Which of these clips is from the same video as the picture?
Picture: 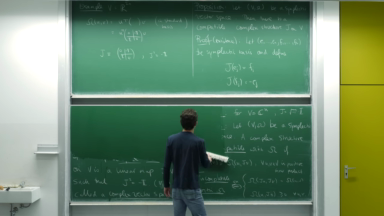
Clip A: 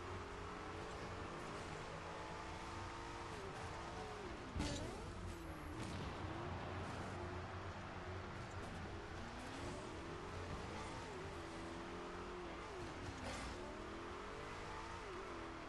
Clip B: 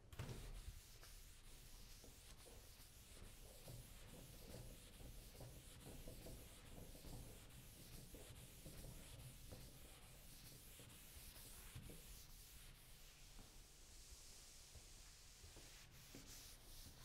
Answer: B